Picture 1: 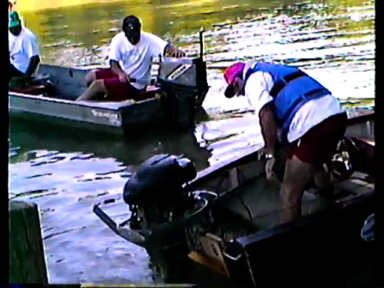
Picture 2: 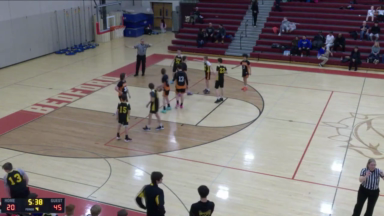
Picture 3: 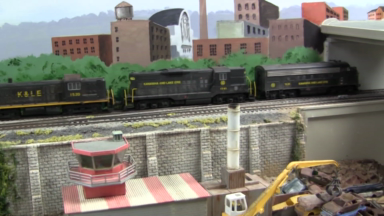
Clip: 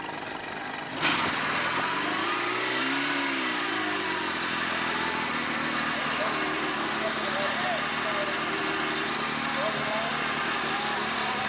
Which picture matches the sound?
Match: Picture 1